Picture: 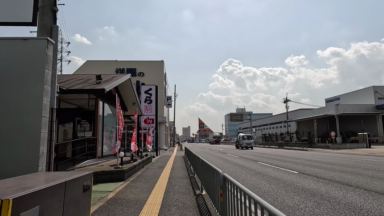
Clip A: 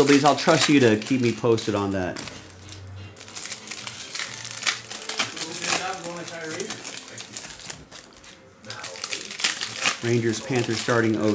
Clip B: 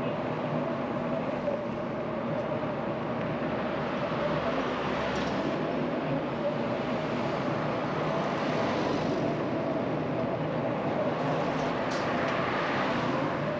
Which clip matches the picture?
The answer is B